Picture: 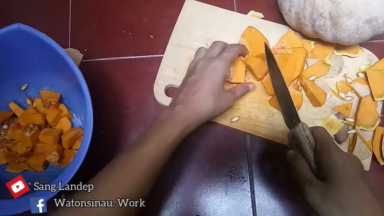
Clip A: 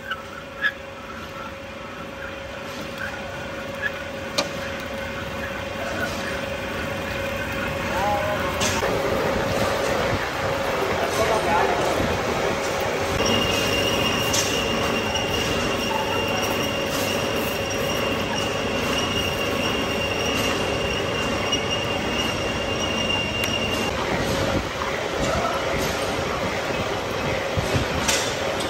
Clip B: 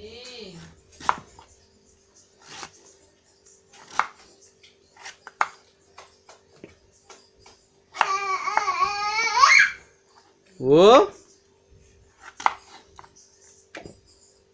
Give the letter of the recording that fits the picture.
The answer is B